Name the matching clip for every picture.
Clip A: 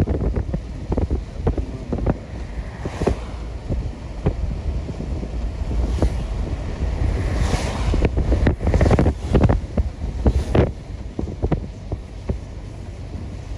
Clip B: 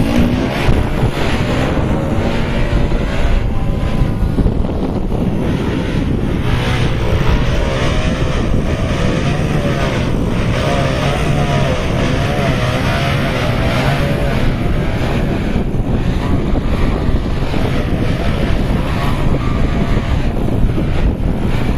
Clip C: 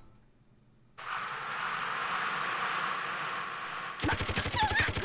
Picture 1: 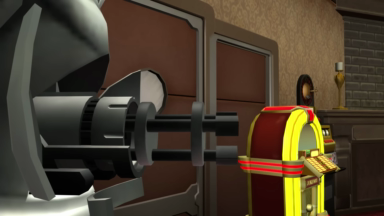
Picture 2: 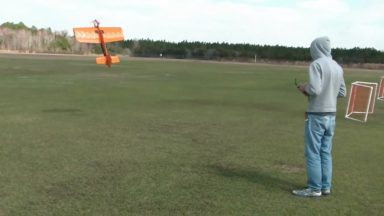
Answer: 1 C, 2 B